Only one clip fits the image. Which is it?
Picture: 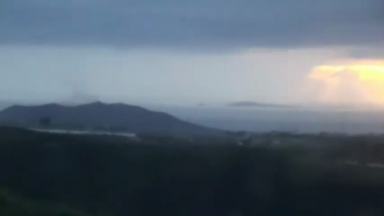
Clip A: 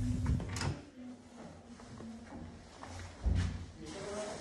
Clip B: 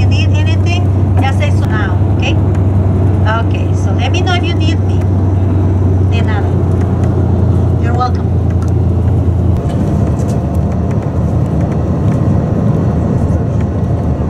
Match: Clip B